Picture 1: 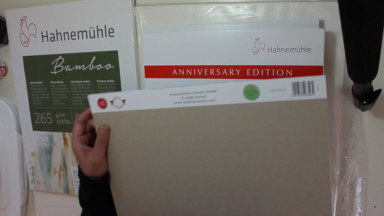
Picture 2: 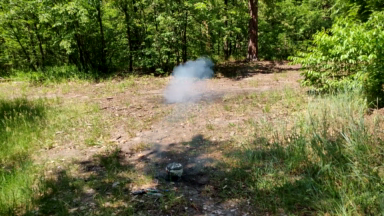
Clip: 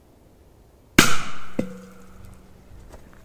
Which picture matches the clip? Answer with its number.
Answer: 2